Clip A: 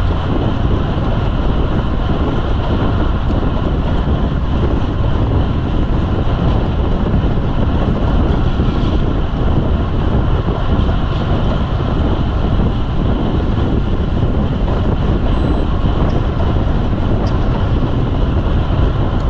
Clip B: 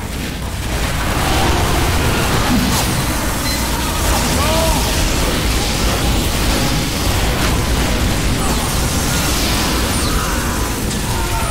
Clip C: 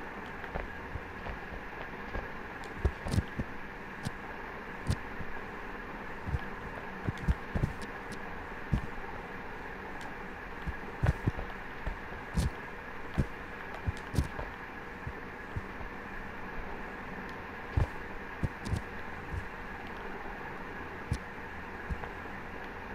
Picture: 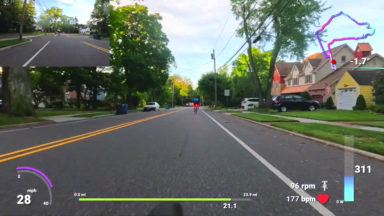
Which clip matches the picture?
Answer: A